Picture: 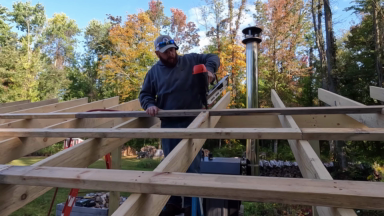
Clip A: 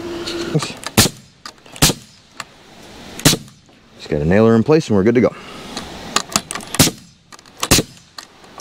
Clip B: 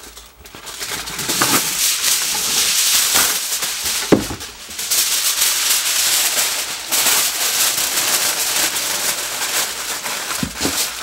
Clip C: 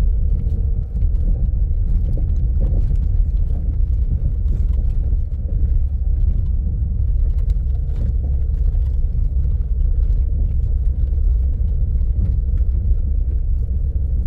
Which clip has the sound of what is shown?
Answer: A